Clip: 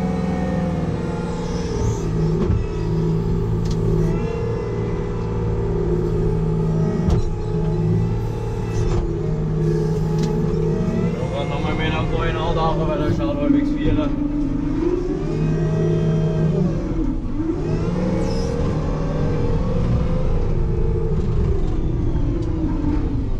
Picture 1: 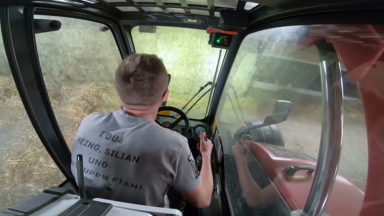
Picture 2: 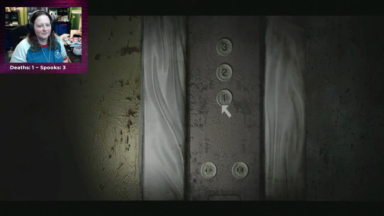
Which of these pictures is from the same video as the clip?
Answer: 1